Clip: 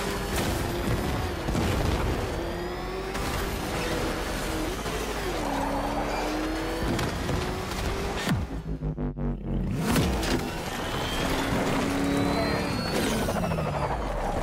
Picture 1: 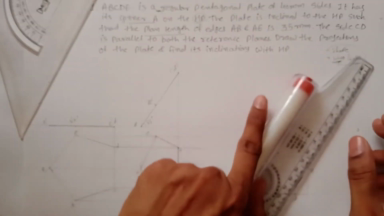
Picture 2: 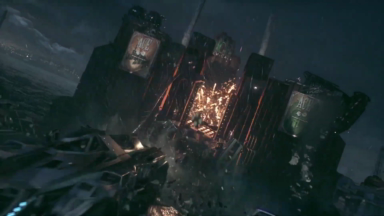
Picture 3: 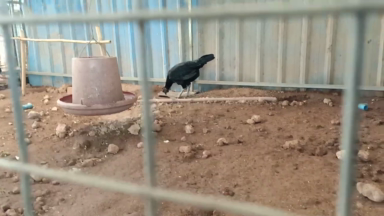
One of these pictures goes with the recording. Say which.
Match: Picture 2